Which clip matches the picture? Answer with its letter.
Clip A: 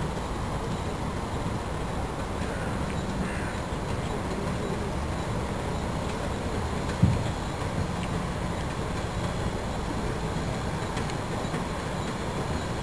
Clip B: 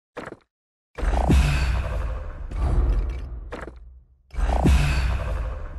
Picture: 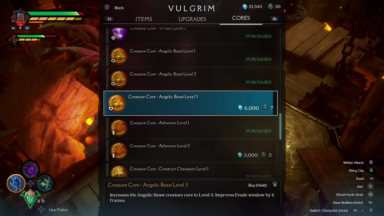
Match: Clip B